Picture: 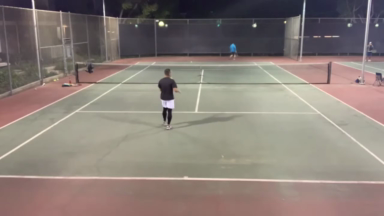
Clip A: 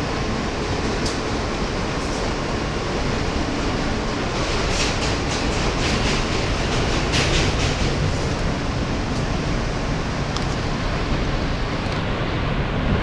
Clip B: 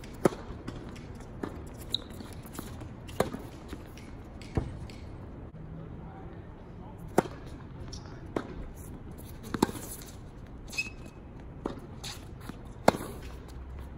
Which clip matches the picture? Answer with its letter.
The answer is B